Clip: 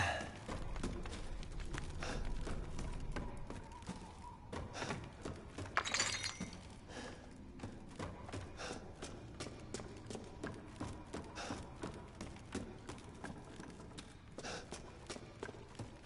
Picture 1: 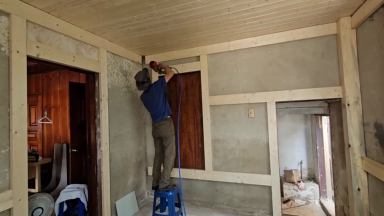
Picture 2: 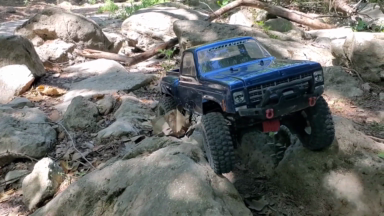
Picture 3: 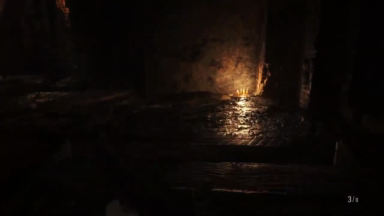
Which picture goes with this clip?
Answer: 3